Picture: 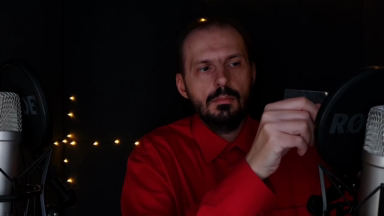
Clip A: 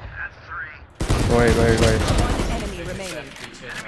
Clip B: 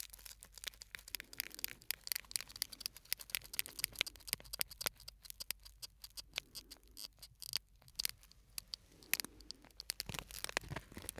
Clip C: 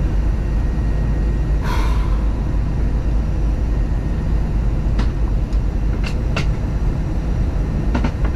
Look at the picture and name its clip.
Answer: B